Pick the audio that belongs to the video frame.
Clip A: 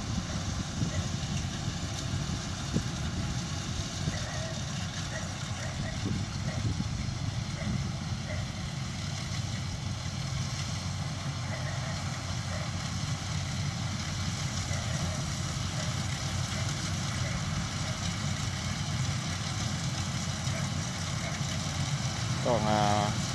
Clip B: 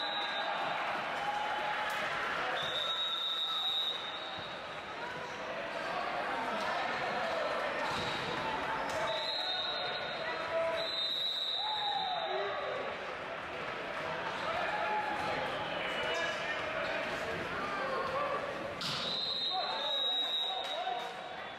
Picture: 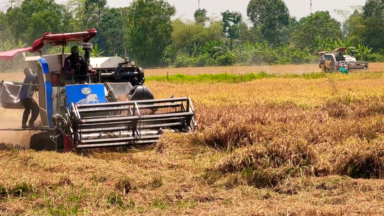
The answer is A